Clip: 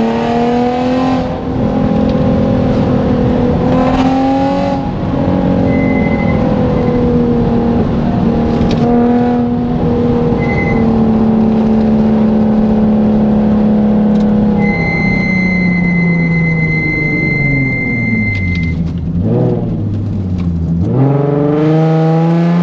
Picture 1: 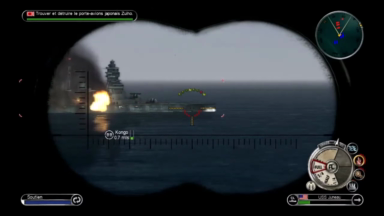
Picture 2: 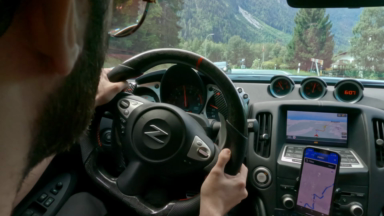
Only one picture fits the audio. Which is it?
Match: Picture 2